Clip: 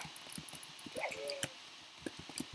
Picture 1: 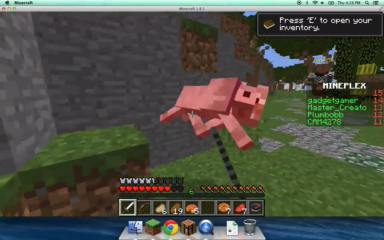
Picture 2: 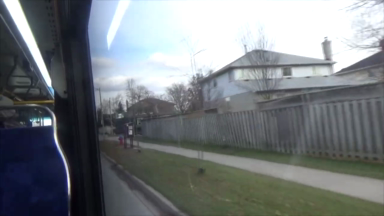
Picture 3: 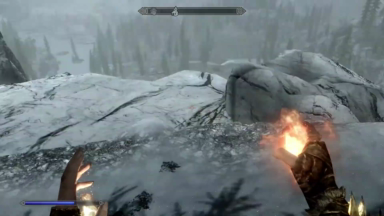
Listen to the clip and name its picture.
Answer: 1